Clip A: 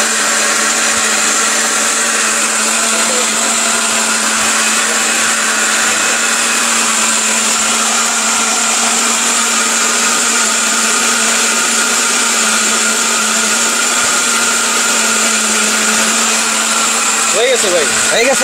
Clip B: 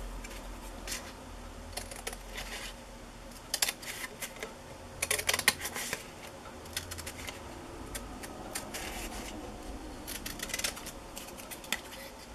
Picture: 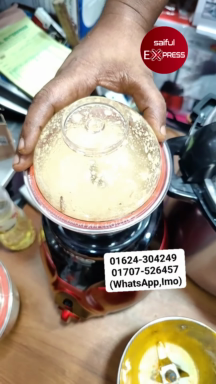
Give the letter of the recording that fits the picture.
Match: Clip A